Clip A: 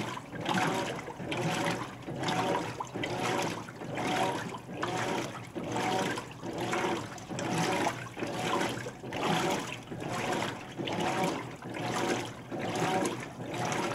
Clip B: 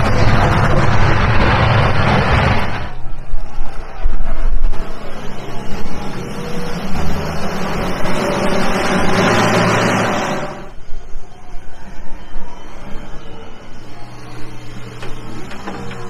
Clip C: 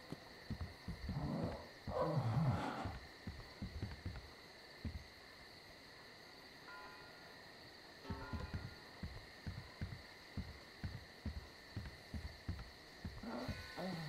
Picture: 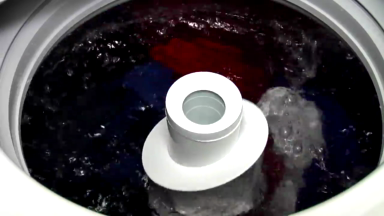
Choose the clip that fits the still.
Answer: A